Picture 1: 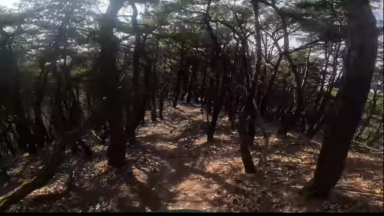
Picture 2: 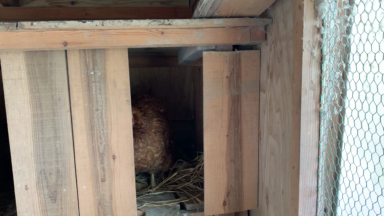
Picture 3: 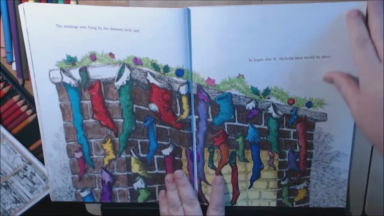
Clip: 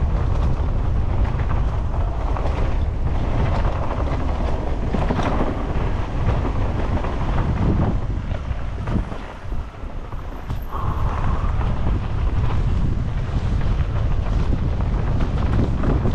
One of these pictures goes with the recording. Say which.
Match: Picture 1